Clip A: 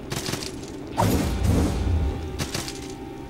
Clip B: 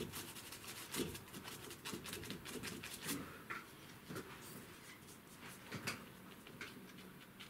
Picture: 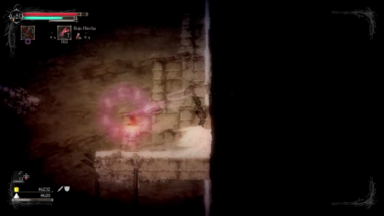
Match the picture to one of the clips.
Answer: A